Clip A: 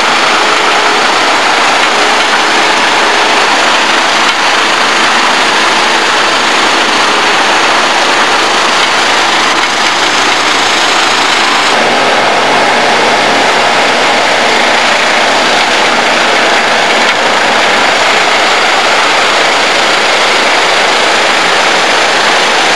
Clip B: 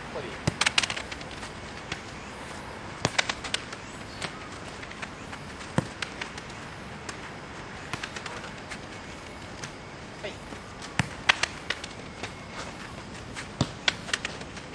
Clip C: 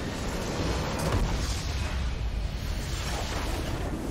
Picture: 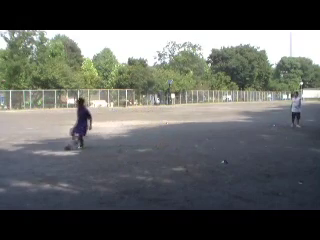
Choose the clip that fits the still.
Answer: B